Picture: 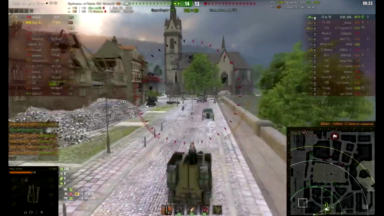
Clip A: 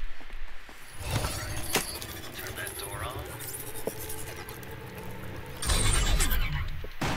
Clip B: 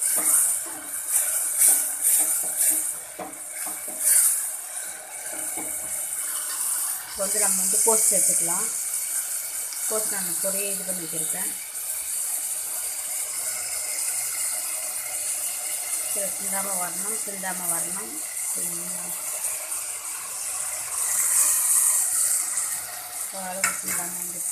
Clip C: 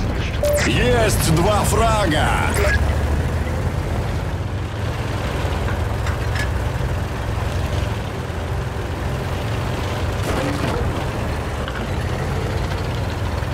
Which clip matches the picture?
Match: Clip C